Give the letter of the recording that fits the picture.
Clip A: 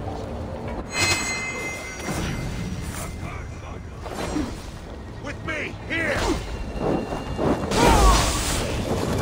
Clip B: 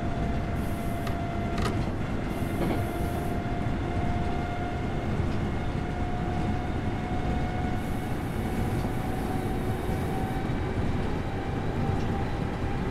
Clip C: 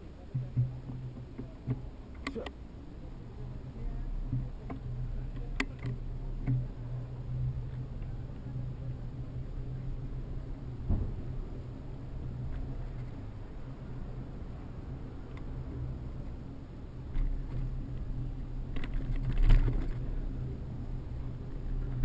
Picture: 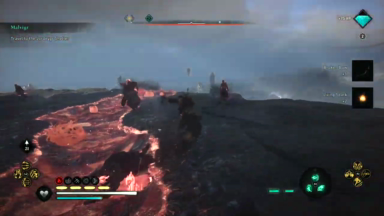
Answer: A